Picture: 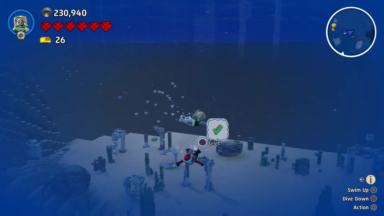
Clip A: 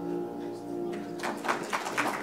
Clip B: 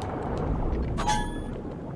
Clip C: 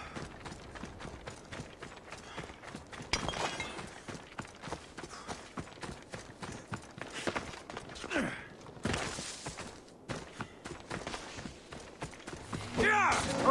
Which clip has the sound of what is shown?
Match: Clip B